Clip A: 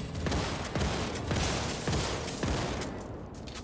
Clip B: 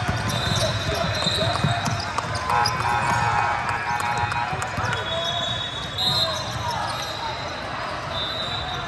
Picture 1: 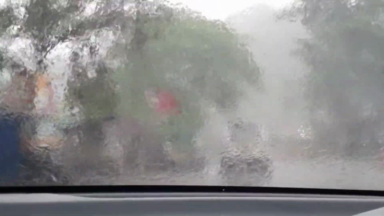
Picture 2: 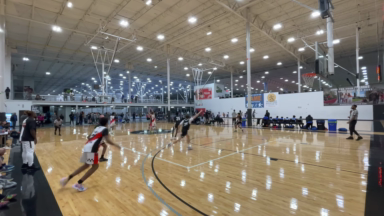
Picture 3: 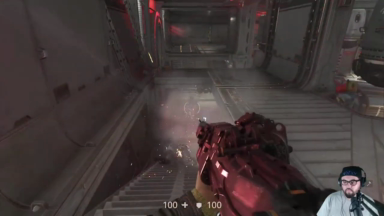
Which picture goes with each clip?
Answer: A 3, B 2